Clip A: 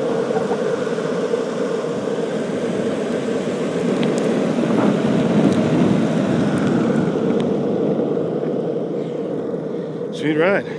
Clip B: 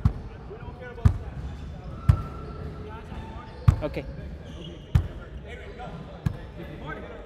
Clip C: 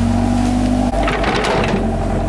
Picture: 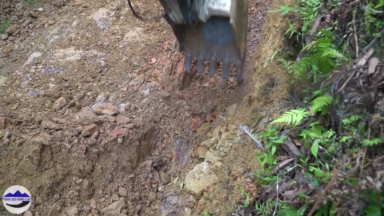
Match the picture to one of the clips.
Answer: C